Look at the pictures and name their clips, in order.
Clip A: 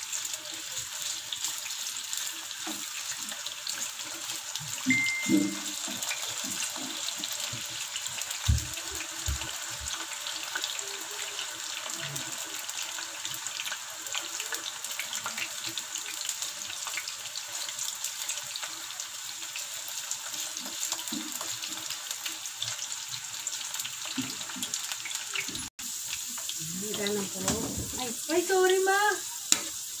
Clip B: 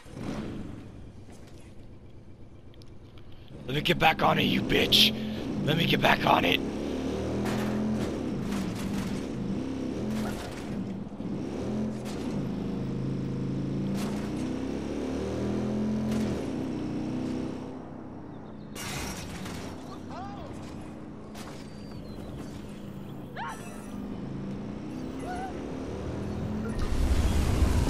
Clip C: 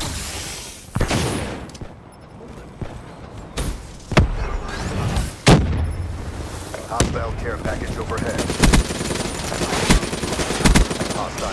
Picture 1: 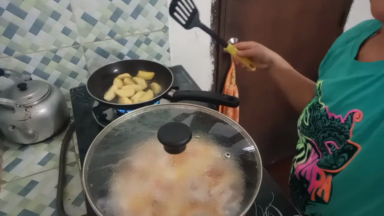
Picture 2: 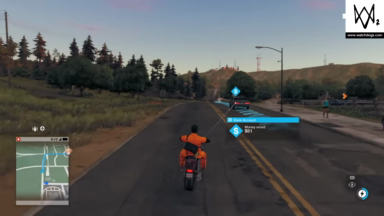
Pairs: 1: A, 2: B